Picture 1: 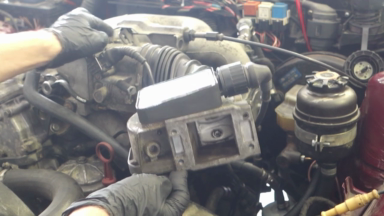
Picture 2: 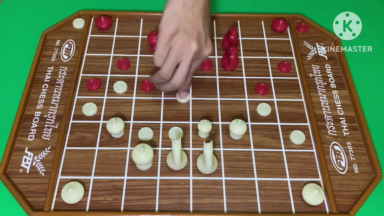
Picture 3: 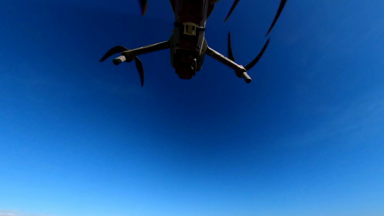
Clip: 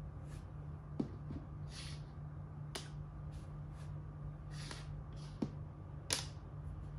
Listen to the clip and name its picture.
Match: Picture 2